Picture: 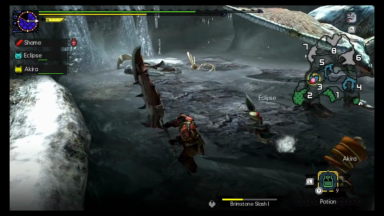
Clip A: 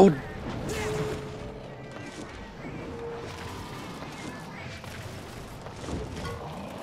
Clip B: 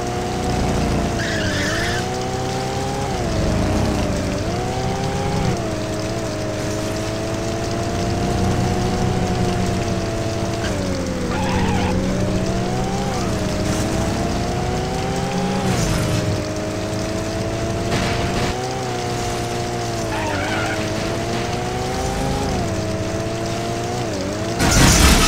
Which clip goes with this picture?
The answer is A